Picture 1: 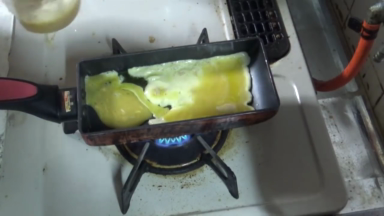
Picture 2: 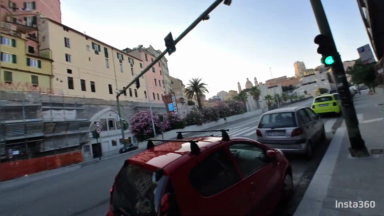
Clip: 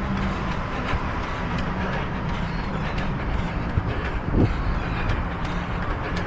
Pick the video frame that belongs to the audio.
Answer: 2